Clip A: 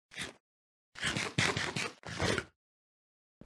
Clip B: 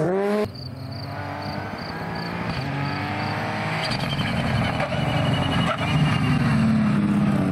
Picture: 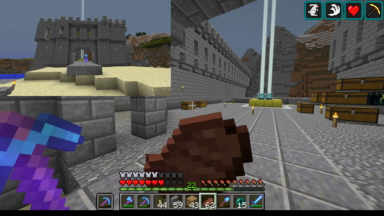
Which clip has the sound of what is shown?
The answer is A